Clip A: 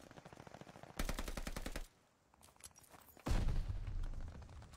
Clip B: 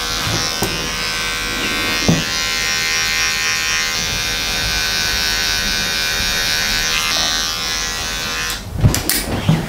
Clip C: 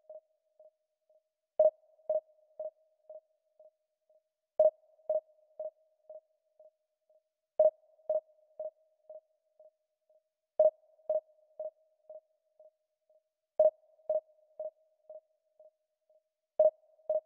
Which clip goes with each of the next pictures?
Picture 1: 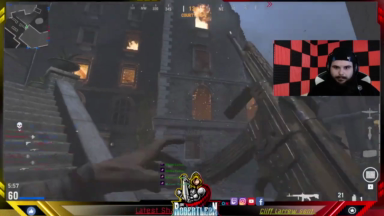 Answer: A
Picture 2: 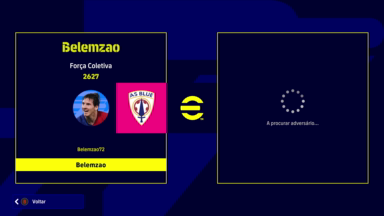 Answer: C